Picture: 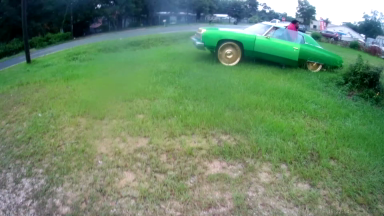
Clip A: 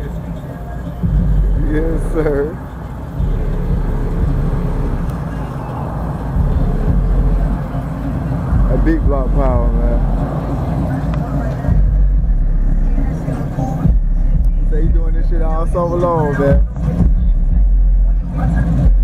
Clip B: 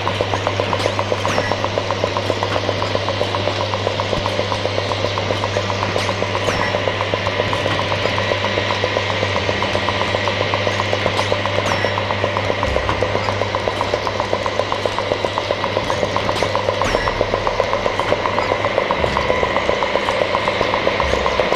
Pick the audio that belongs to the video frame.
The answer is A